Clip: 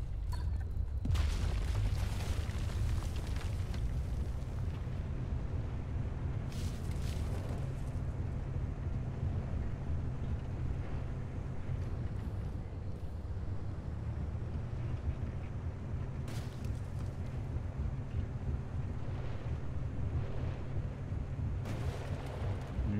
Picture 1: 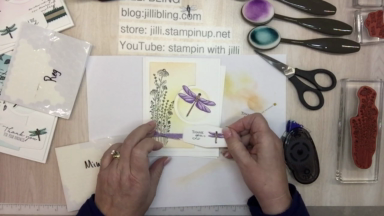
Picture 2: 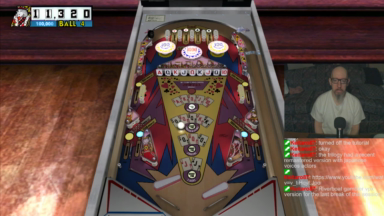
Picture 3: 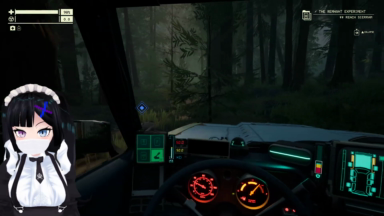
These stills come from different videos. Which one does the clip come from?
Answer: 3